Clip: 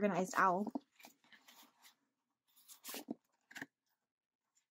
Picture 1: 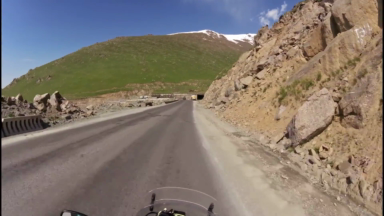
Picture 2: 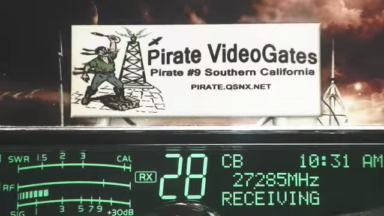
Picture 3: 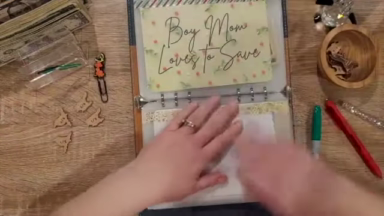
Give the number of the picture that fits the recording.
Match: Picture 3